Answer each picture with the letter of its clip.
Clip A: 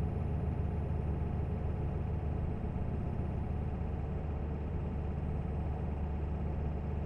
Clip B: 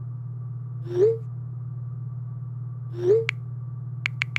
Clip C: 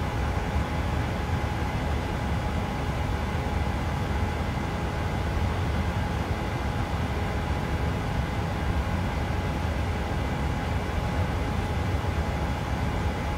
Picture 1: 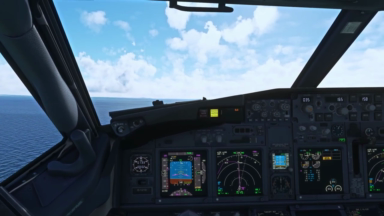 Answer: C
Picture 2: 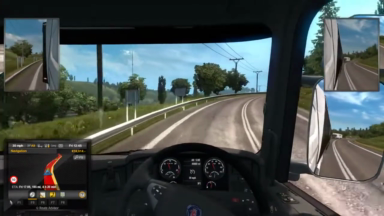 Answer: A